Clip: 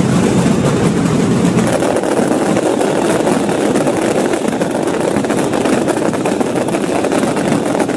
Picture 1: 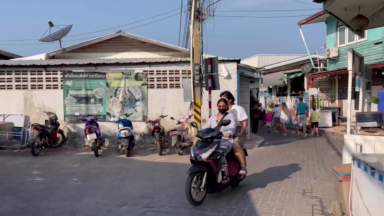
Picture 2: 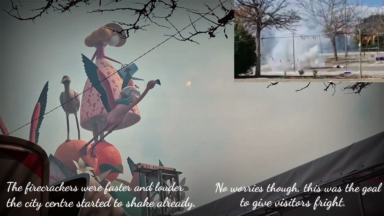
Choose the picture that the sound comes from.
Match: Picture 2